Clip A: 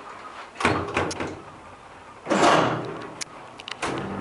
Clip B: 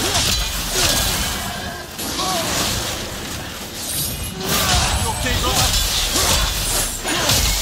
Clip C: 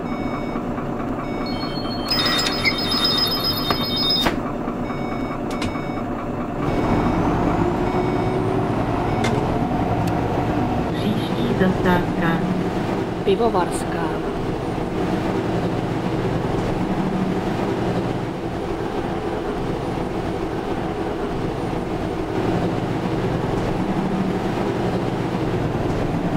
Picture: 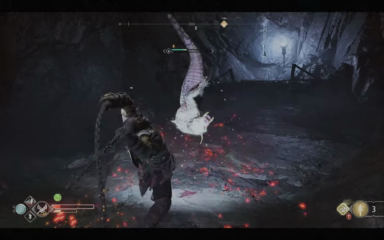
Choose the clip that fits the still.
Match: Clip B